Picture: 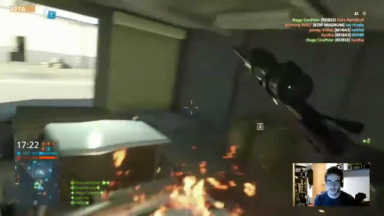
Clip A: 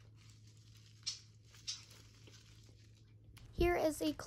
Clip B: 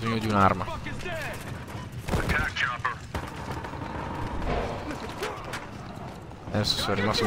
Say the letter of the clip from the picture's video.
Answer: B